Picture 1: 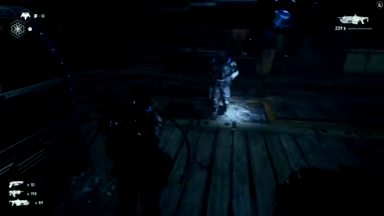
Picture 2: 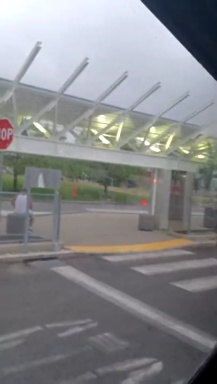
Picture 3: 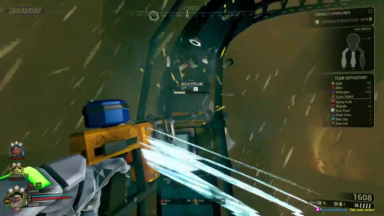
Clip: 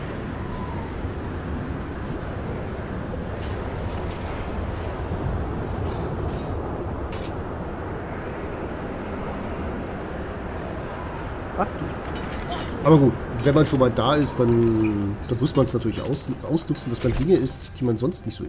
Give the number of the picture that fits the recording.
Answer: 3